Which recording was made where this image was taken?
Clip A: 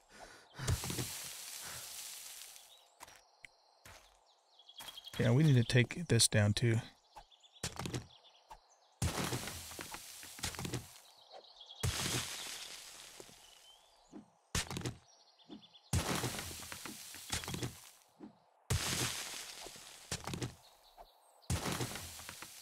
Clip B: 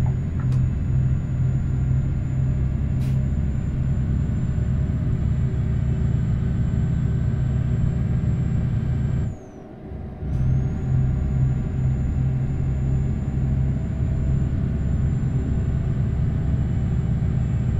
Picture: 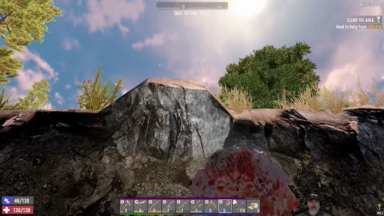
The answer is A